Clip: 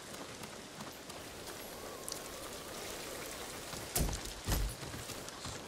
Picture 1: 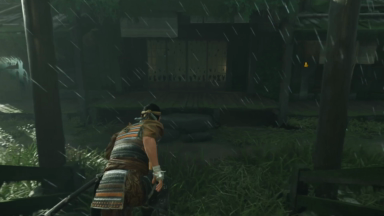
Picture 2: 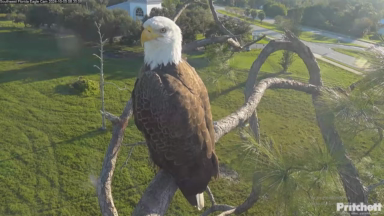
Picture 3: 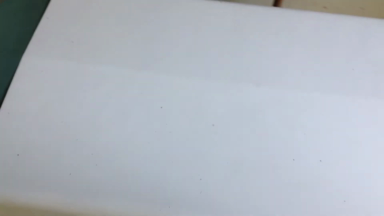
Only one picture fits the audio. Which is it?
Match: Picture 1